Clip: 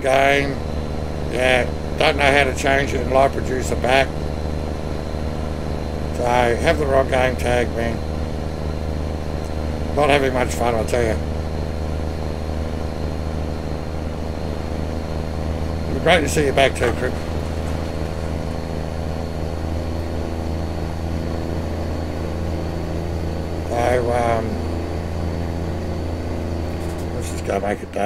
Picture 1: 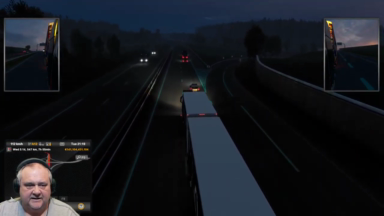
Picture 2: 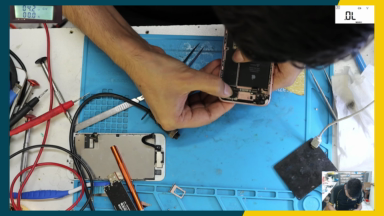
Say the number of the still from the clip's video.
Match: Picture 1